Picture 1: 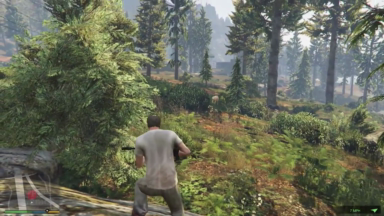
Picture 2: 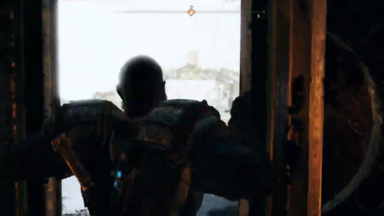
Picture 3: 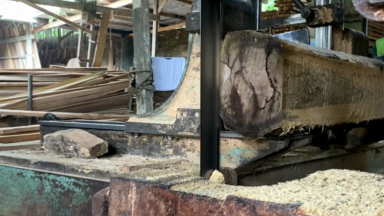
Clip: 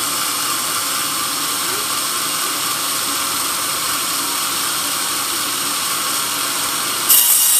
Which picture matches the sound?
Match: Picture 3